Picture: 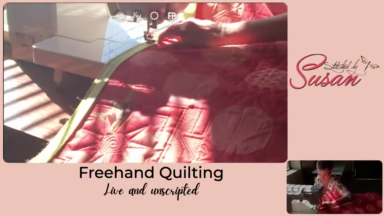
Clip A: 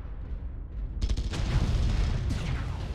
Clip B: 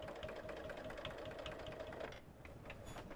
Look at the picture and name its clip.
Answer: B